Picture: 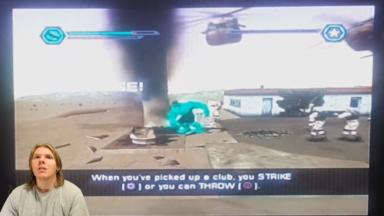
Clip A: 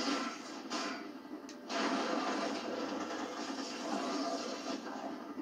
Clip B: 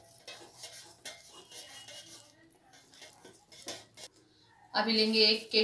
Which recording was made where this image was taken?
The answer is A